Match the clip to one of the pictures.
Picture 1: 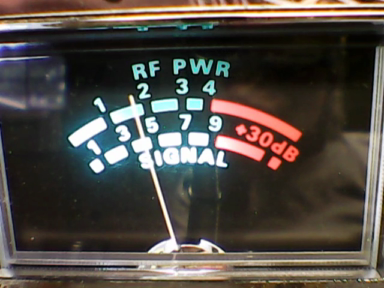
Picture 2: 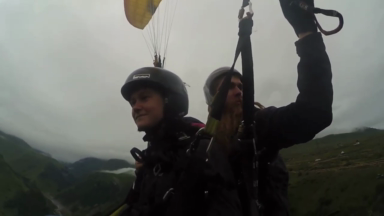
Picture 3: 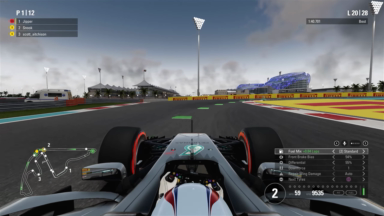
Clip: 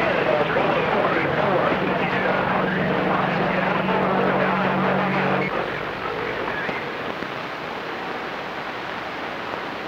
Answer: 1